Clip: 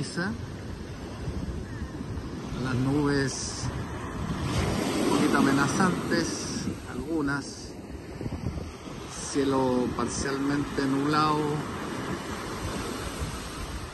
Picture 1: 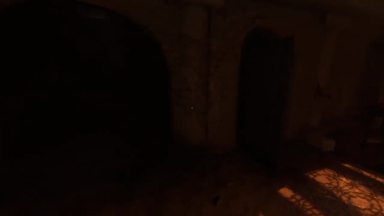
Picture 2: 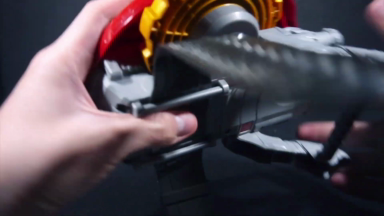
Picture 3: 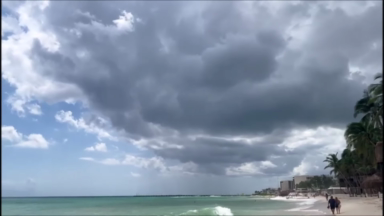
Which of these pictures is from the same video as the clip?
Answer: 3